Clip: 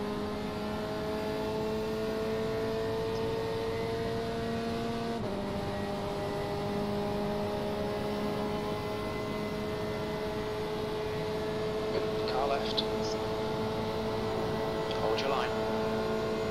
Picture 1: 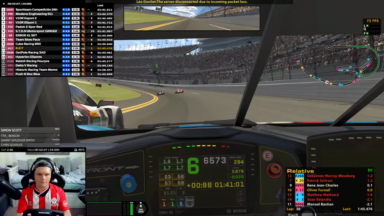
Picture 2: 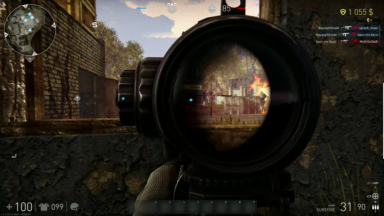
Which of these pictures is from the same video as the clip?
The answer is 1